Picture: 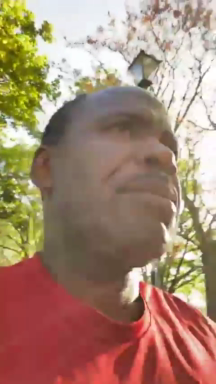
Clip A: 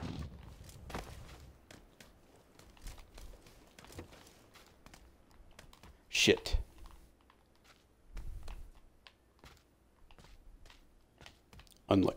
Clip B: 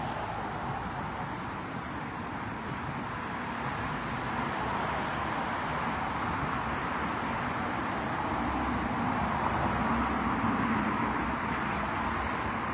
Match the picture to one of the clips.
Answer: B